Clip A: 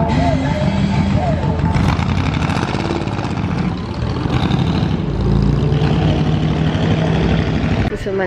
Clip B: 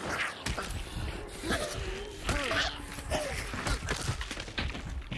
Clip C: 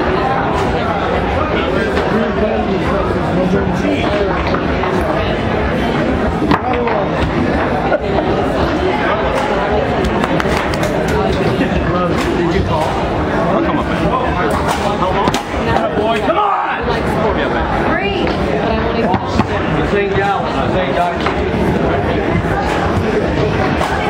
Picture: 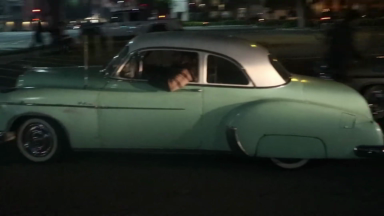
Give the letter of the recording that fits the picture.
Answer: A